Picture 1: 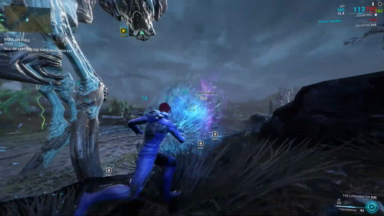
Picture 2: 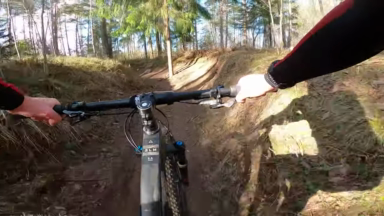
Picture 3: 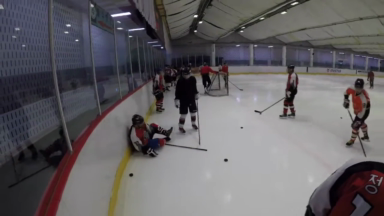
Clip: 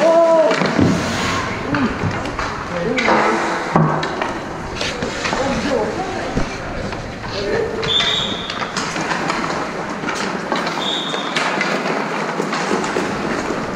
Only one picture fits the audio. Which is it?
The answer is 3